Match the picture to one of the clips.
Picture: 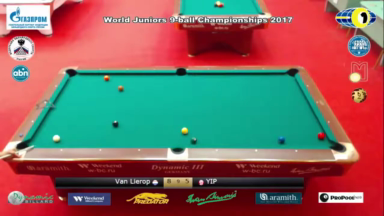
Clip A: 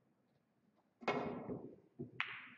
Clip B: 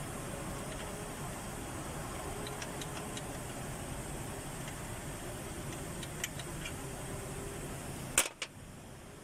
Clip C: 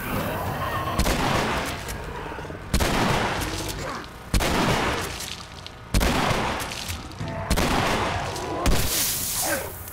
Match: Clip A